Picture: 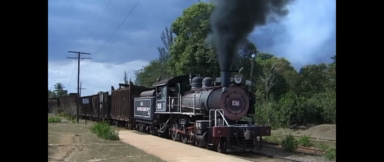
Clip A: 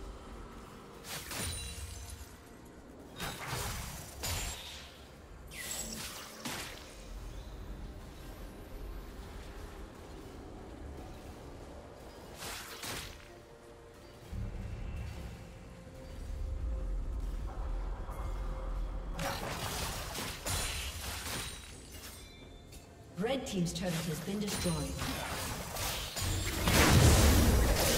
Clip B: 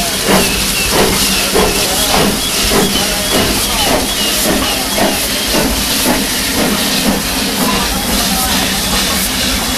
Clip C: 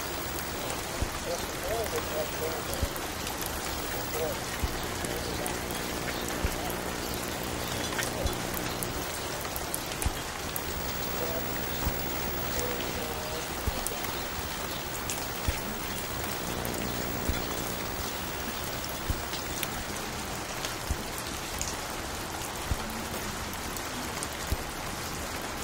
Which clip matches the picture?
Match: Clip B